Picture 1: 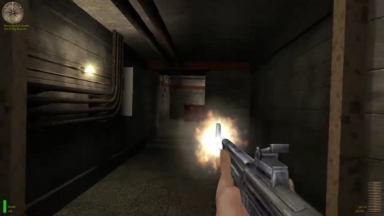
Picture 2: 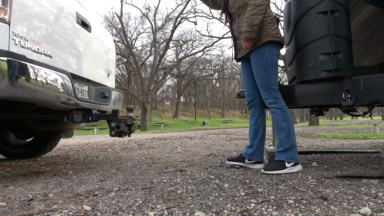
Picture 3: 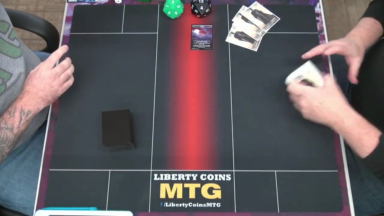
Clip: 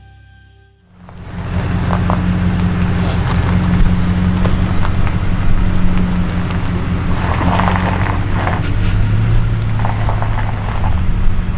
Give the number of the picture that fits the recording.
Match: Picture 2